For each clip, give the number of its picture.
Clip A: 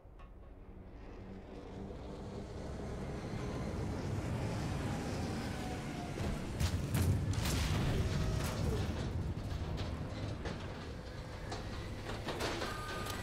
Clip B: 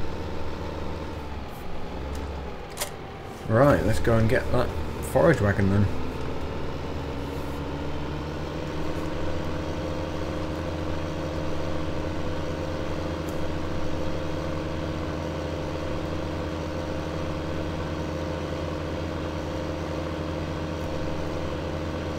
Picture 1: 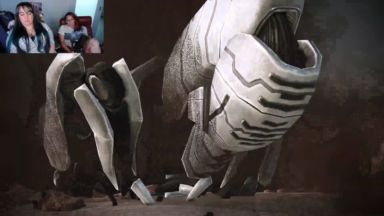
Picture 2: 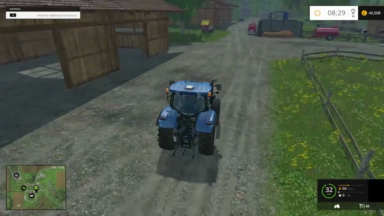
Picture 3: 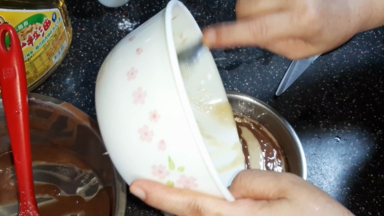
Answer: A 1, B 2